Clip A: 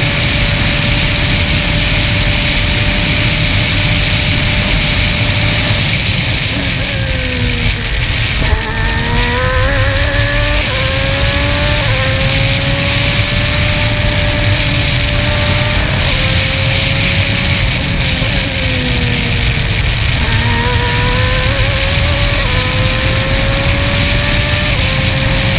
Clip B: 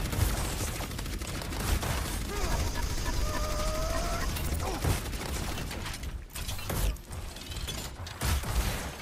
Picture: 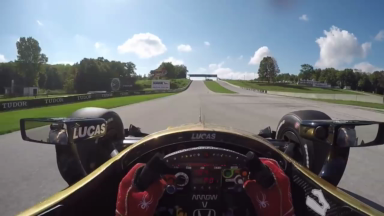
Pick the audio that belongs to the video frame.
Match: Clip A